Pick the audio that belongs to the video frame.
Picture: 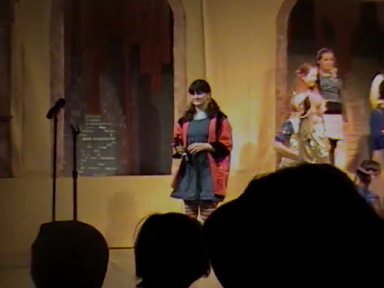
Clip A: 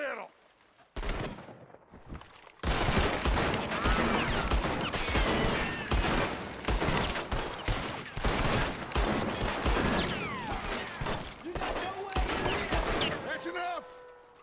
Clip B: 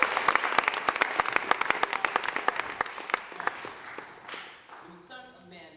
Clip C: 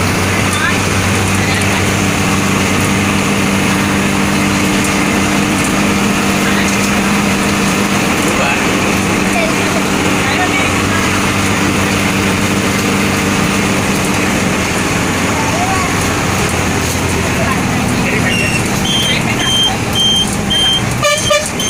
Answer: B